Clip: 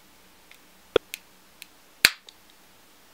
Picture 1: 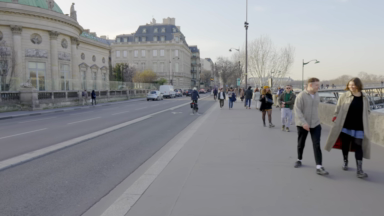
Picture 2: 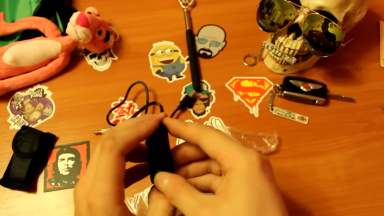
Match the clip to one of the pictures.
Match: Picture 2